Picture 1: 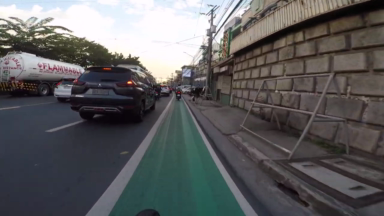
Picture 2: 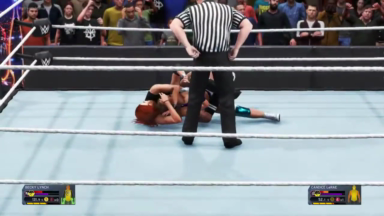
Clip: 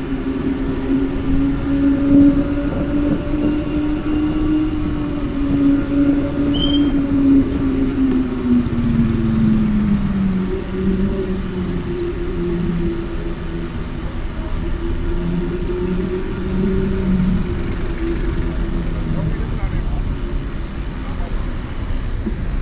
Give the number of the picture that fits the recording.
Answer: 1